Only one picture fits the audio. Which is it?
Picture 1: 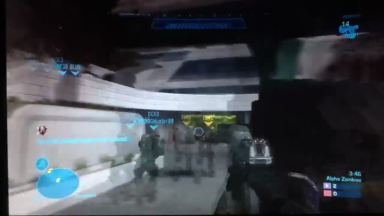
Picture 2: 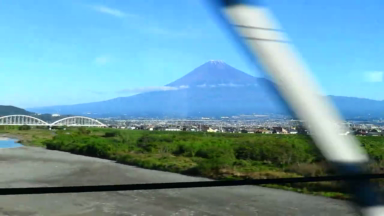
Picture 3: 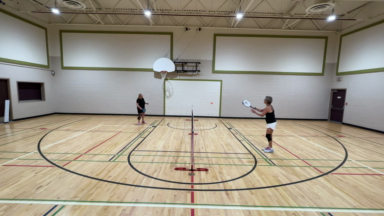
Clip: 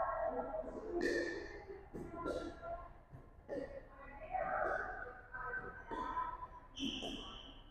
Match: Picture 3